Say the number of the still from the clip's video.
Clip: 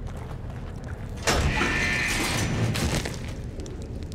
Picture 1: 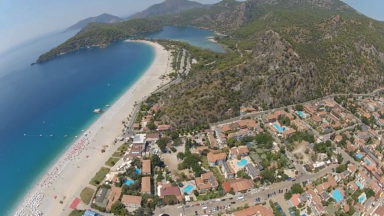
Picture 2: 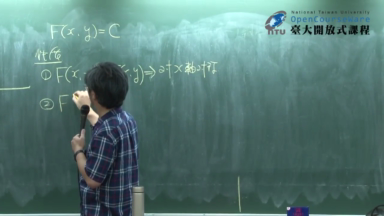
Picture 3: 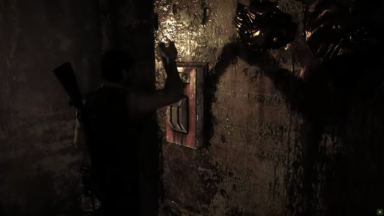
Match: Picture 3